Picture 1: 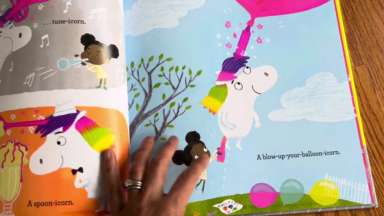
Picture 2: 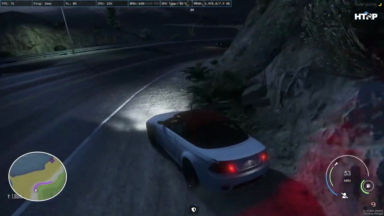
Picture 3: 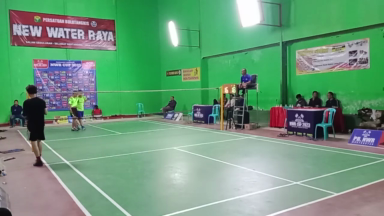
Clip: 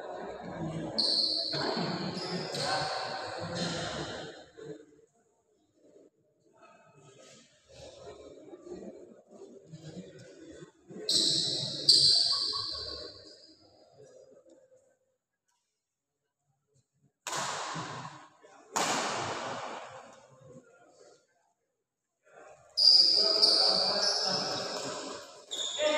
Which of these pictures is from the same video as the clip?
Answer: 3